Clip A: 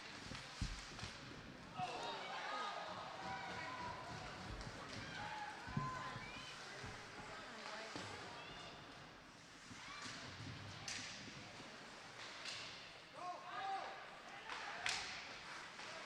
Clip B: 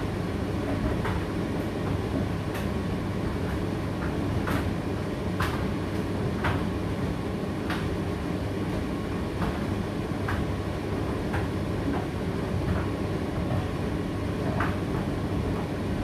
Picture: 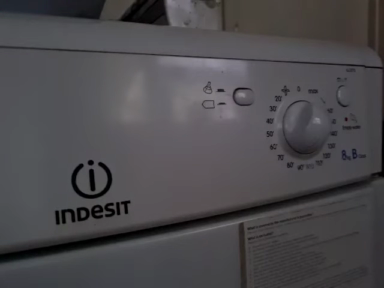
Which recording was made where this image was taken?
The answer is B